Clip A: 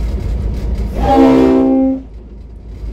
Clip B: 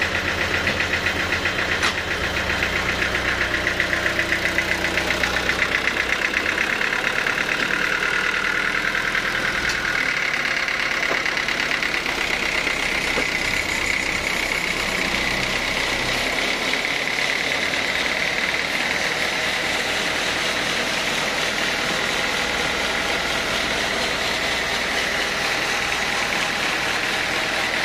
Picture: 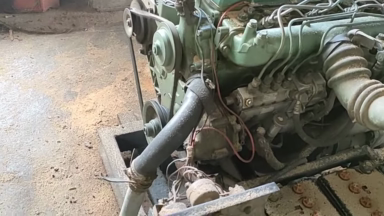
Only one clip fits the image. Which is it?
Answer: B